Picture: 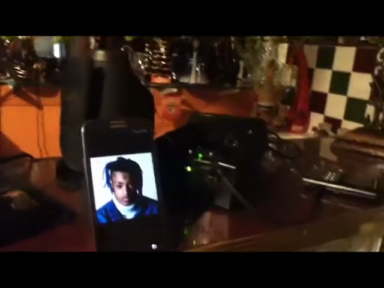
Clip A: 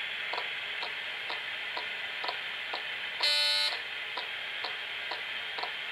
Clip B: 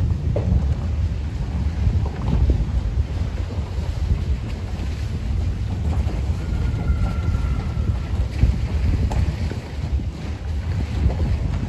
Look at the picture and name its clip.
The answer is A